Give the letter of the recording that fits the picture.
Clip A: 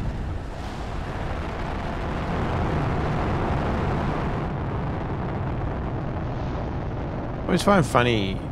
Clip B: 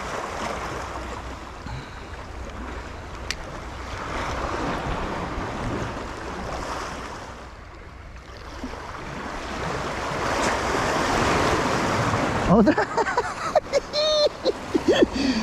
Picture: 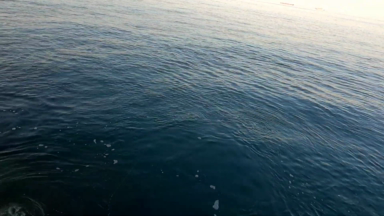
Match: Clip B